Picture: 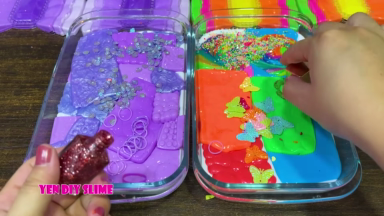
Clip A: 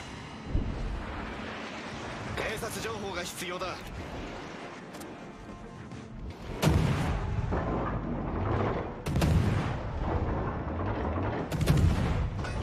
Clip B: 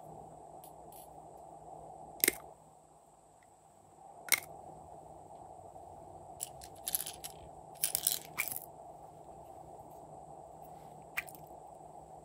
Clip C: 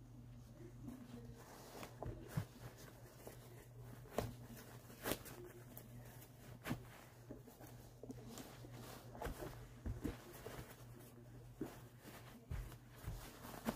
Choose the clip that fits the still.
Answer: B